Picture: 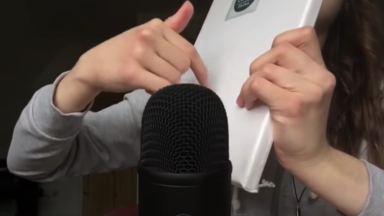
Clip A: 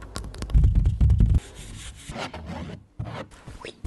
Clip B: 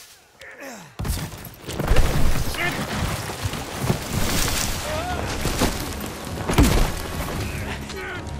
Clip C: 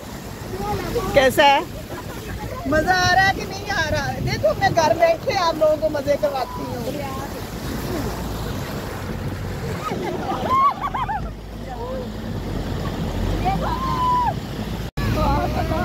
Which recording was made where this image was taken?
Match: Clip A